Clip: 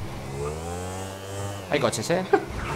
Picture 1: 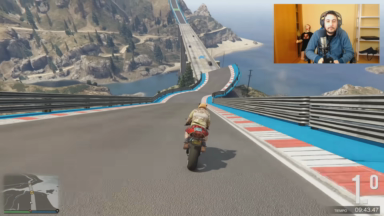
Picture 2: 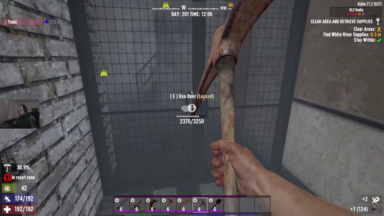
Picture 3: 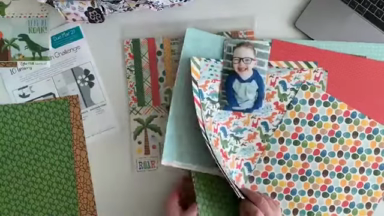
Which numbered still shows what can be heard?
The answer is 1